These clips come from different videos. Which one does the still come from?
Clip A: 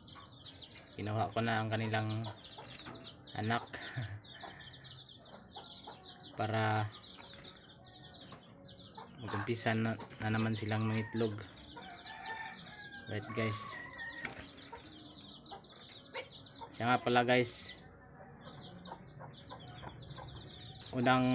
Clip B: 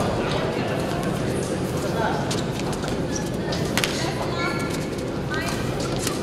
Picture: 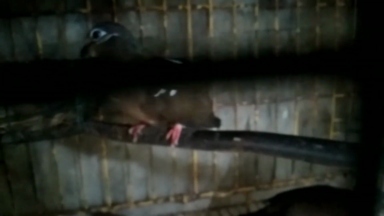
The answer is A